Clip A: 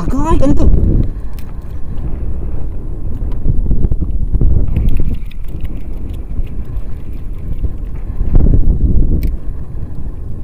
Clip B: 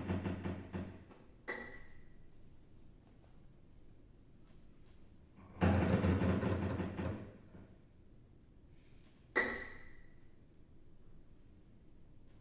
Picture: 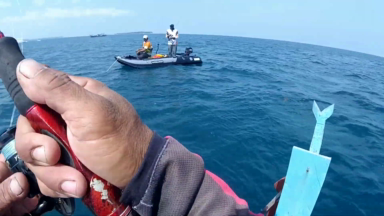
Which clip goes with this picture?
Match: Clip A